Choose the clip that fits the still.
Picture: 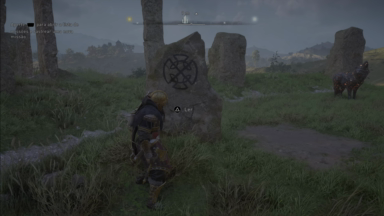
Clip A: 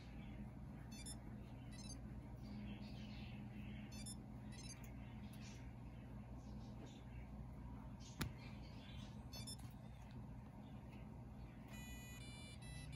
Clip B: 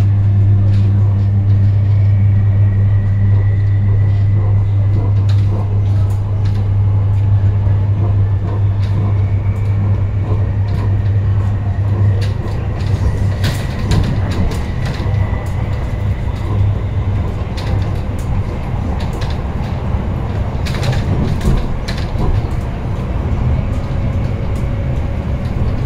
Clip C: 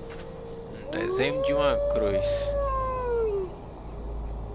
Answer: C